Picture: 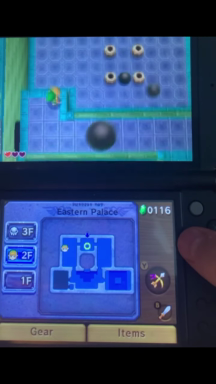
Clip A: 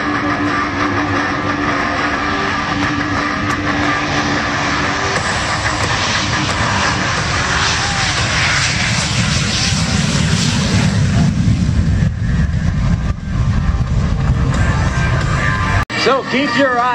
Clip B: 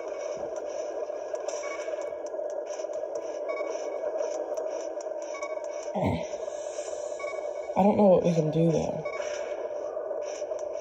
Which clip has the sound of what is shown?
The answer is B